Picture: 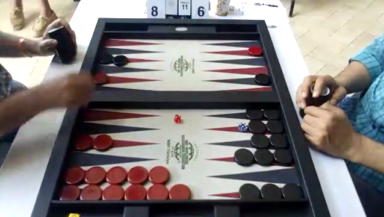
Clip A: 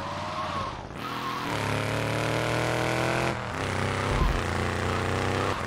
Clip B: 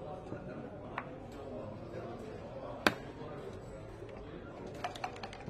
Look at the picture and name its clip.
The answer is B